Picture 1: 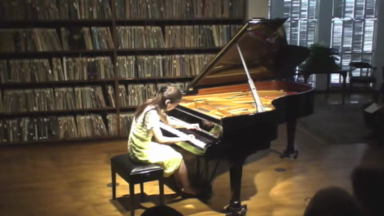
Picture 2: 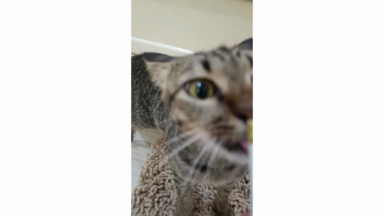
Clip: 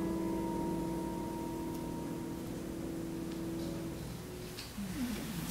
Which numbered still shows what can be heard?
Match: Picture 1